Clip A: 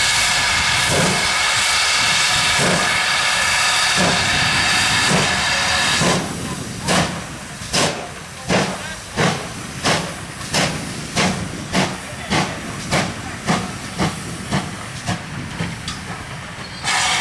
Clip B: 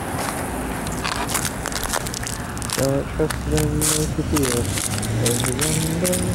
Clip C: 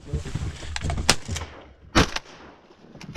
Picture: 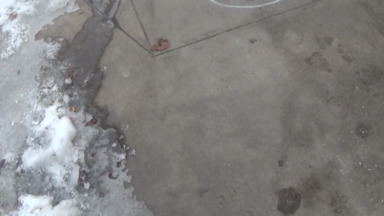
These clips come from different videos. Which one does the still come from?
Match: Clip B